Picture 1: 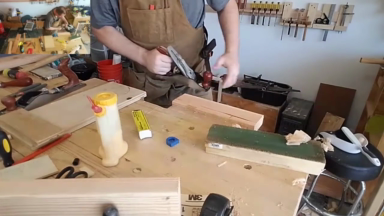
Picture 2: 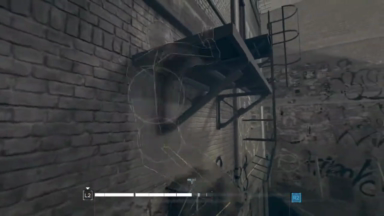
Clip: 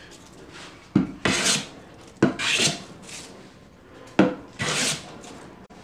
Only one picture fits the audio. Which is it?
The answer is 1